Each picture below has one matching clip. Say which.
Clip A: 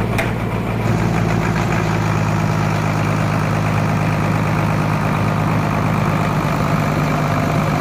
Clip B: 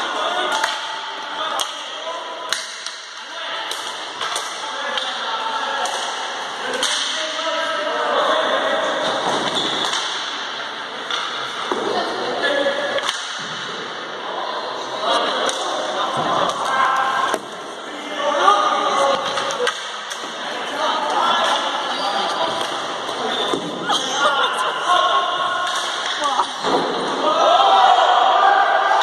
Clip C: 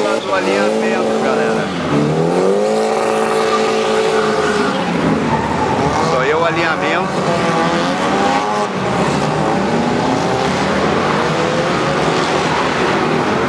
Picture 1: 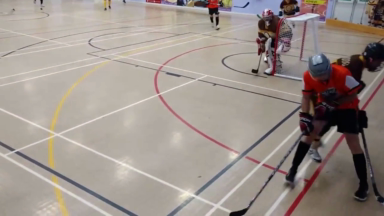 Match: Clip B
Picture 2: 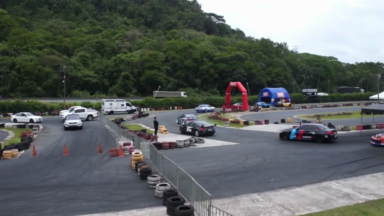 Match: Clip C